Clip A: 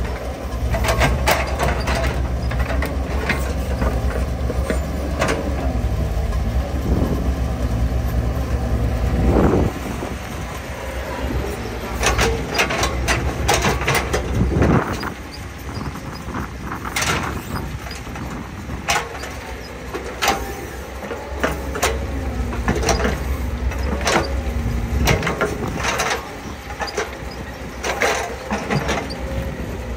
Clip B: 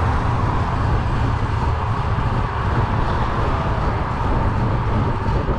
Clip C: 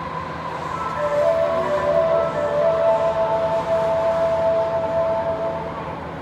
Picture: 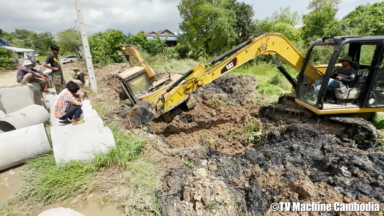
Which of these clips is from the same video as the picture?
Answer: A